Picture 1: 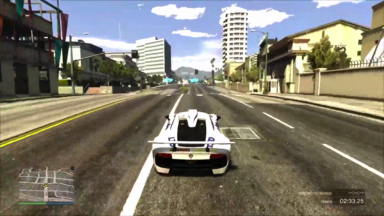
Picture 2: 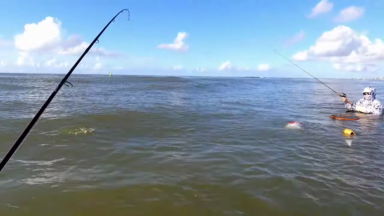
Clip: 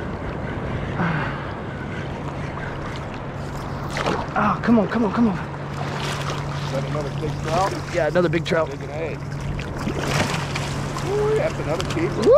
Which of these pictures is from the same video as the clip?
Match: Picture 2